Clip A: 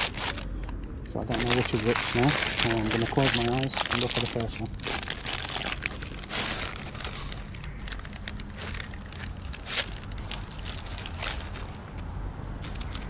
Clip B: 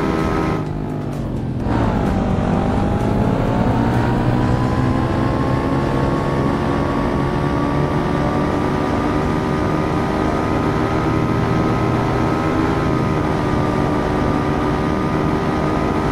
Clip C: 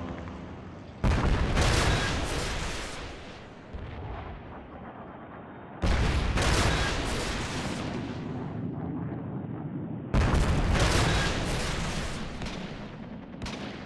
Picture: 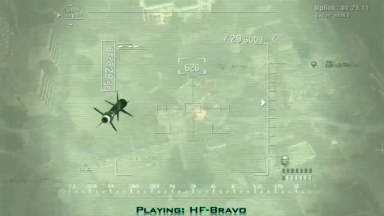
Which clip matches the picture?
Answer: C